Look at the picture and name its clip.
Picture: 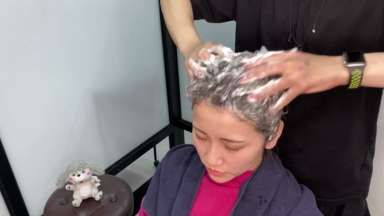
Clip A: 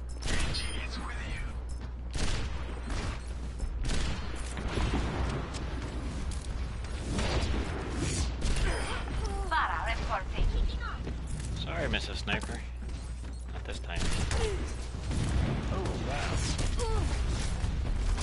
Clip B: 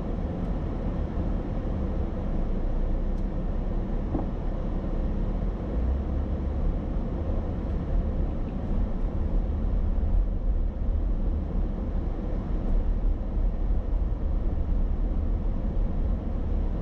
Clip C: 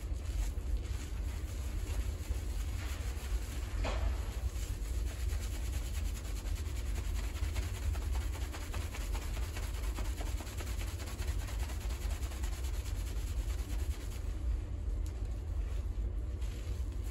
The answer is C